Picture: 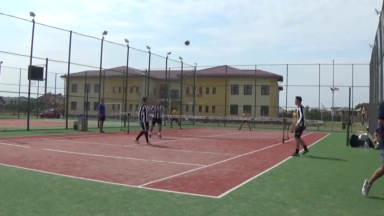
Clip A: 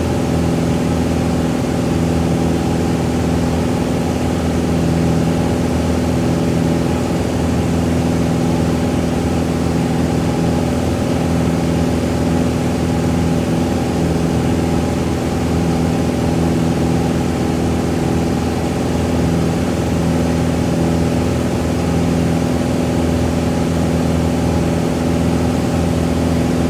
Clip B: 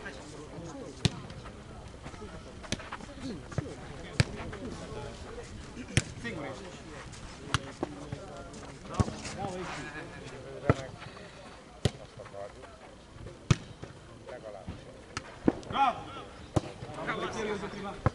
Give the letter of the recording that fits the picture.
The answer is B